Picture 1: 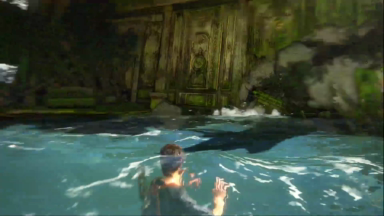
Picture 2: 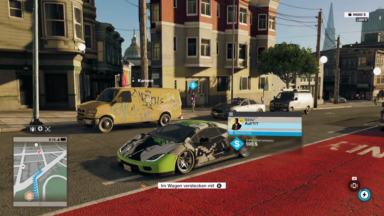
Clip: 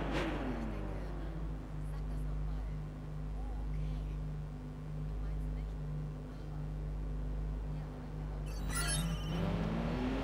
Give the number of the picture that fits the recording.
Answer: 2